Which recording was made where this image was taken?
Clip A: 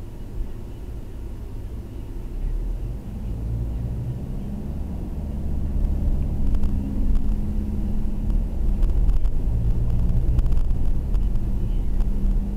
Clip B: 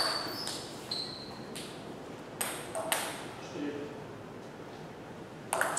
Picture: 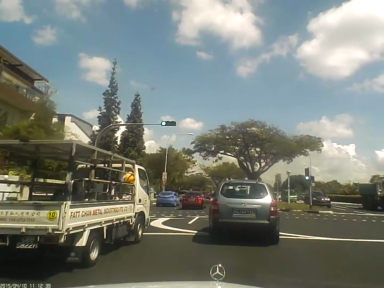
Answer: A